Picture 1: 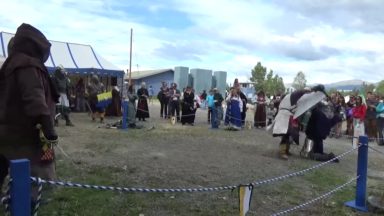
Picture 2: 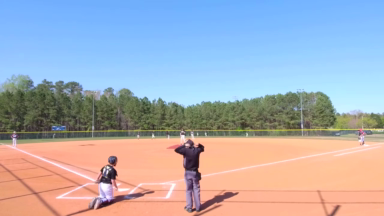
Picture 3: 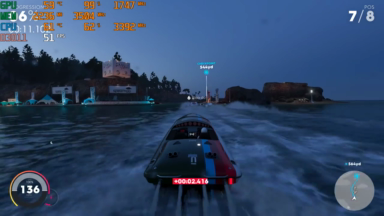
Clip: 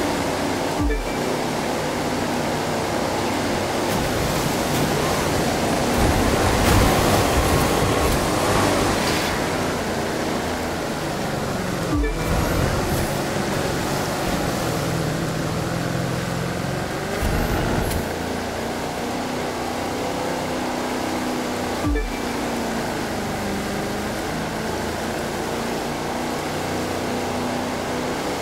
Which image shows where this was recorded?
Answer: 3